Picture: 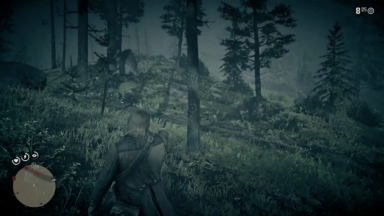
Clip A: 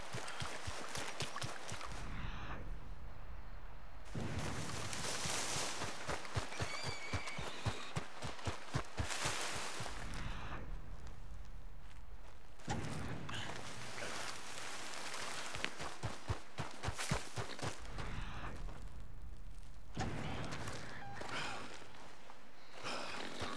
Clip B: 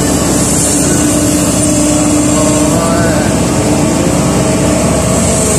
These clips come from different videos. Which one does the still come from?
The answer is A